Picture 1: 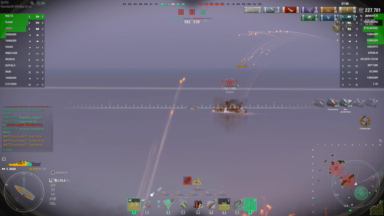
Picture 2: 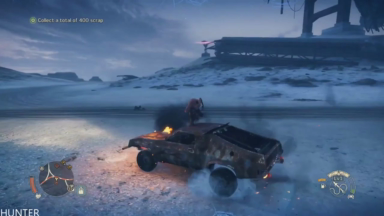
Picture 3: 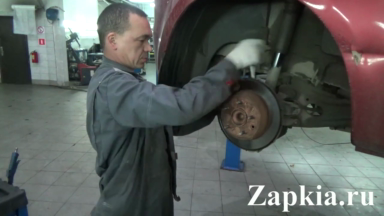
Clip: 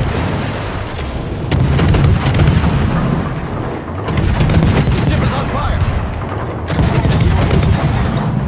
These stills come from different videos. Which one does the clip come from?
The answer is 1